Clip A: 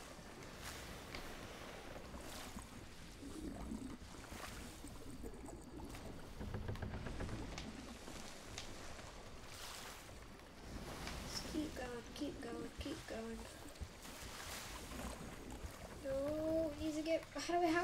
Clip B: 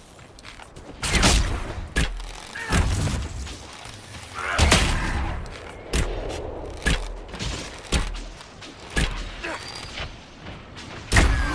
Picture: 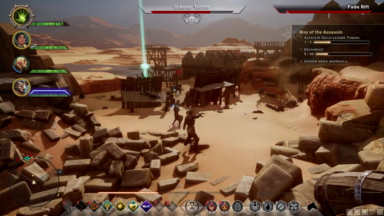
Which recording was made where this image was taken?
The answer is B